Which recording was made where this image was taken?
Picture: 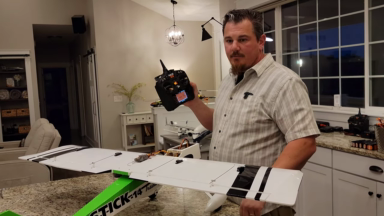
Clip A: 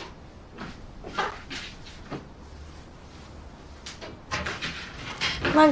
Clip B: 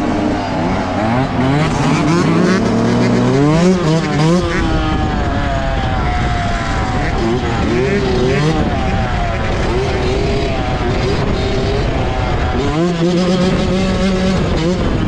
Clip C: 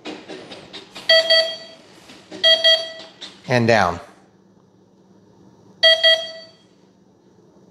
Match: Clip C